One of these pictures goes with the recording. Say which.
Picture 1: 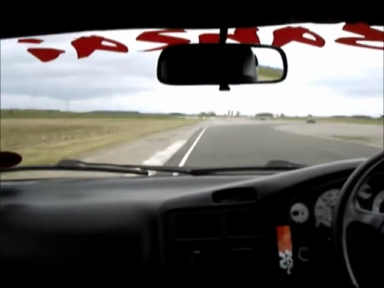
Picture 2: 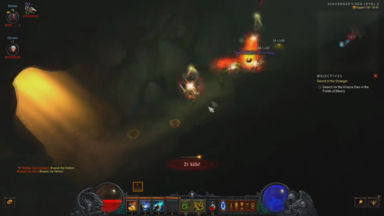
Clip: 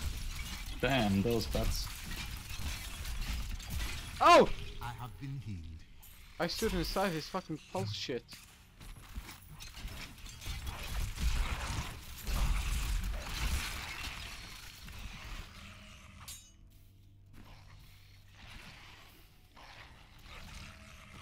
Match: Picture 2